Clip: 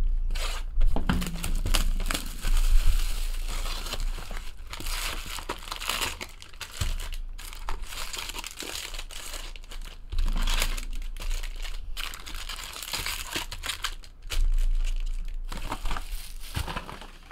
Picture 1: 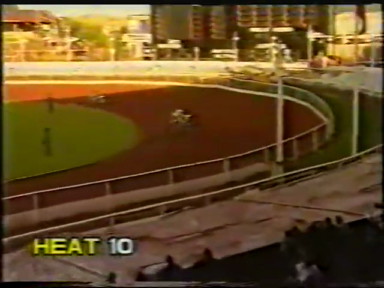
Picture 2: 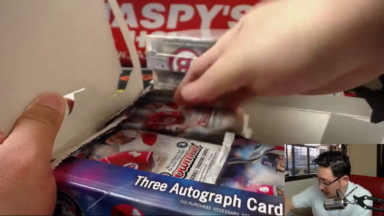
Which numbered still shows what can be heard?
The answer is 2